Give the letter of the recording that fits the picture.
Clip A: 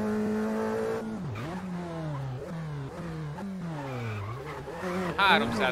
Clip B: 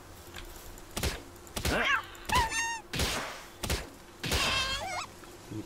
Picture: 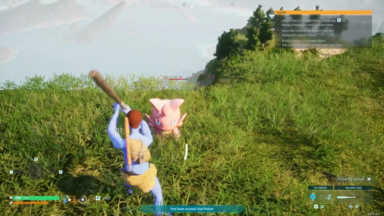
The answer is B